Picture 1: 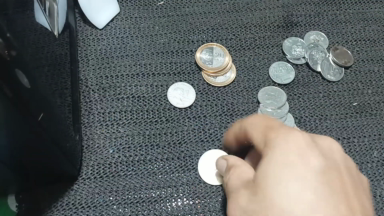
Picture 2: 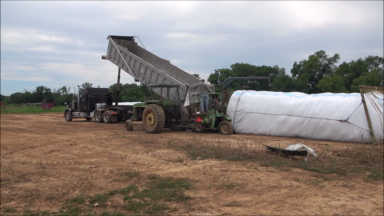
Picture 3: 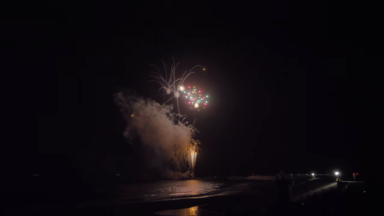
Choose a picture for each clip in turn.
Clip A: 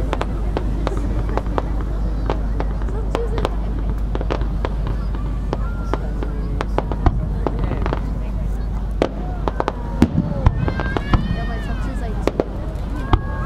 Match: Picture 3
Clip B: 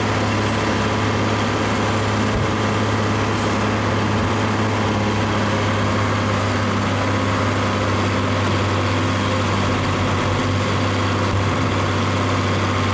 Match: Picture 2